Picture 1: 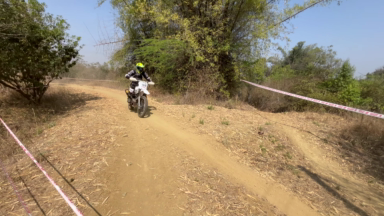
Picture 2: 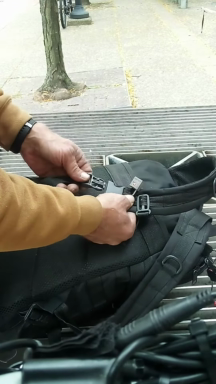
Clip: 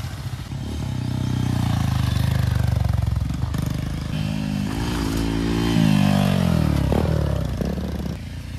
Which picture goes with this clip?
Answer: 1